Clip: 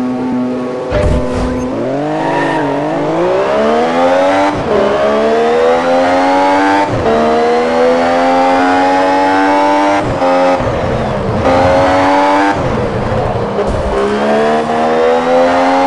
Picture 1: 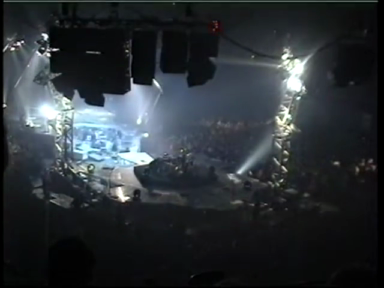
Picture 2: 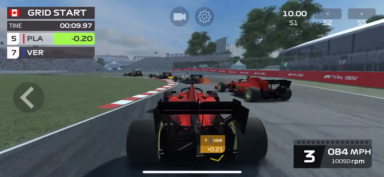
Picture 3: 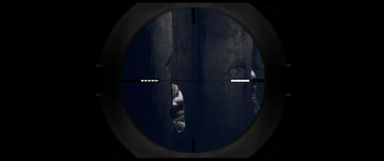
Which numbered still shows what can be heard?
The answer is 2